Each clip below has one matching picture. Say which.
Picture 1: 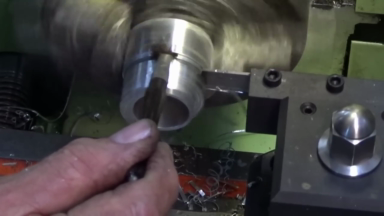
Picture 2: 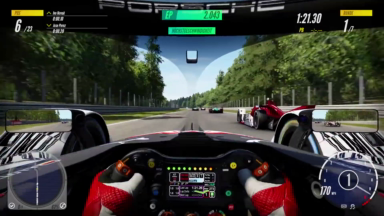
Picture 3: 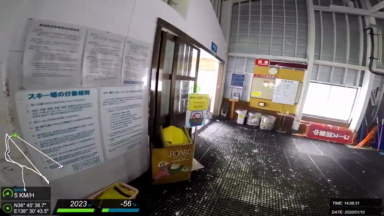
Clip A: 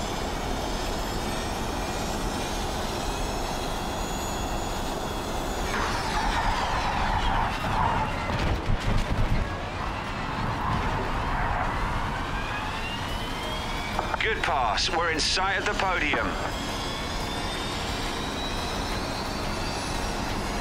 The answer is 2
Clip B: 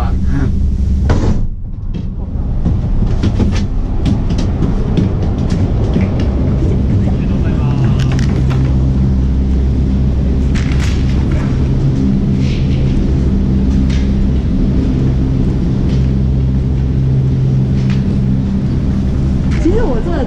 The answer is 3